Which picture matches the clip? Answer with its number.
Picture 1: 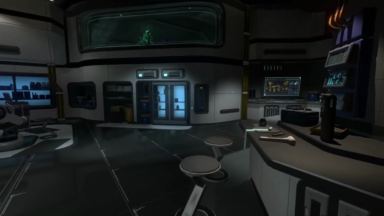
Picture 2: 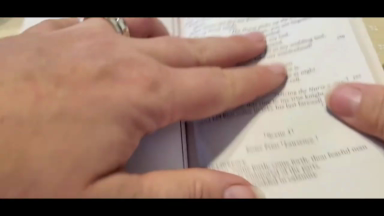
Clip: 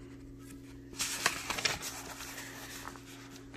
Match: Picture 2